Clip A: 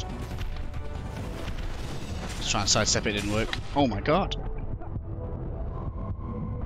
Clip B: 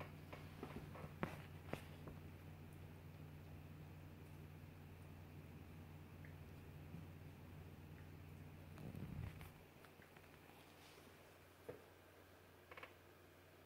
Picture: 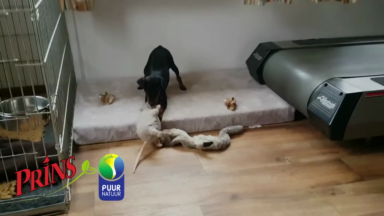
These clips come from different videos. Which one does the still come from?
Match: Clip B